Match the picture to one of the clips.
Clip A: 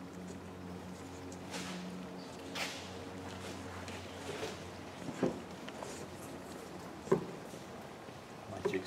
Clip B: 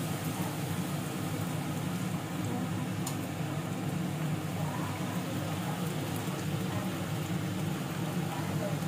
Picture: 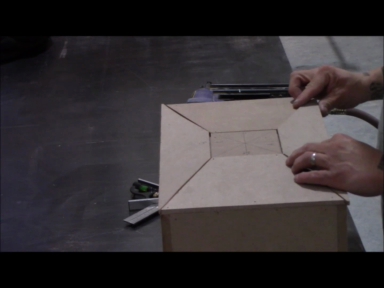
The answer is A